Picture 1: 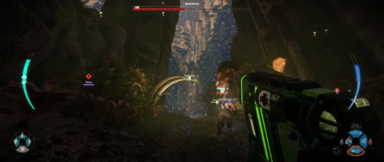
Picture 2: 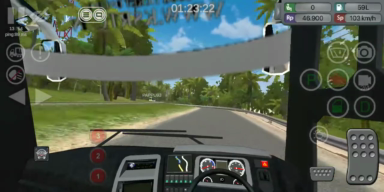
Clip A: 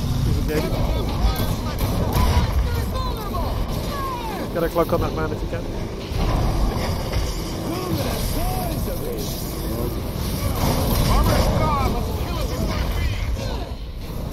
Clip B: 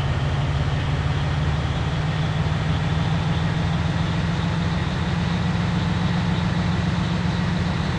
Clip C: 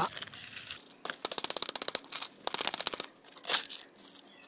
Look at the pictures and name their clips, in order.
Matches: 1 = A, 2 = B